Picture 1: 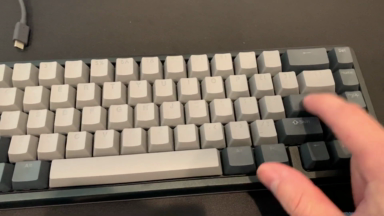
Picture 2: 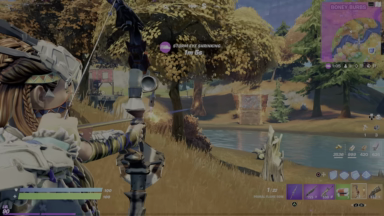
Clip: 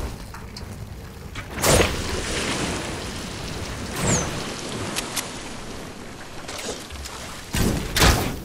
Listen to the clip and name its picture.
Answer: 2